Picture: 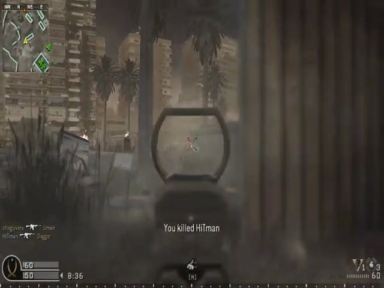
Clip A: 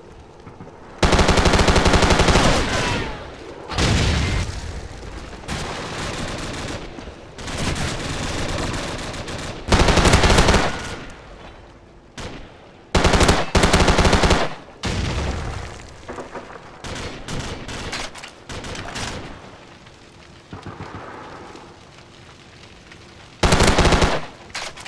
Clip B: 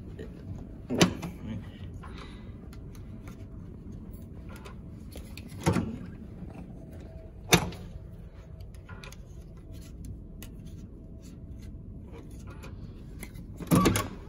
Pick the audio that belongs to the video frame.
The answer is A